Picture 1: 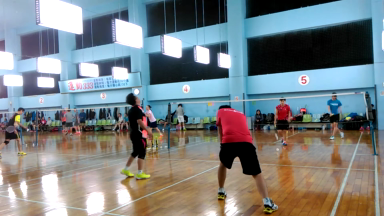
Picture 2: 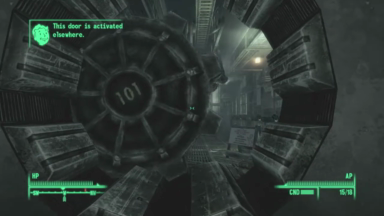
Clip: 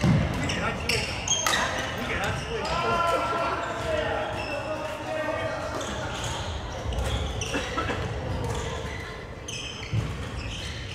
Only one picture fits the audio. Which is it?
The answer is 1